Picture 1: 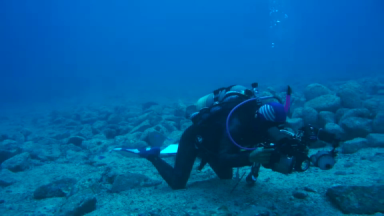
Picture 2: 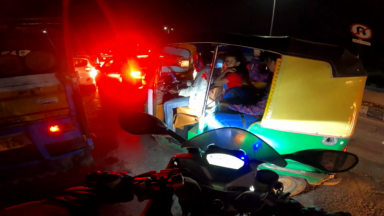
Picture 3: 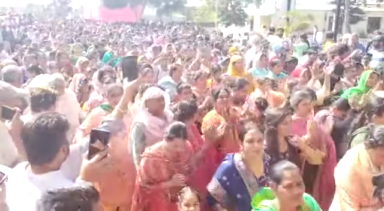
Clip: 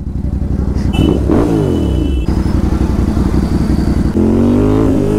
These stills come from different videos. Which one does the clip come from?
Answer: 2